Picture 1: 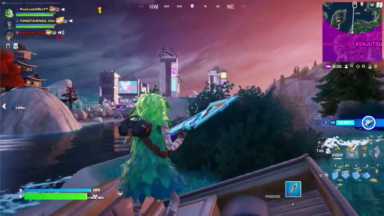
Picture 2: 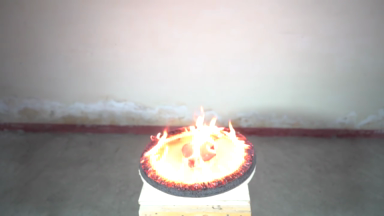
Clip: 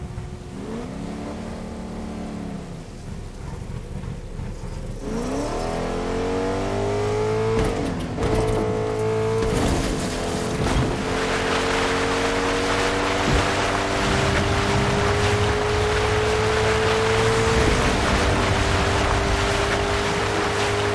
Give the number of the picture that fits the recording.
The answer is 1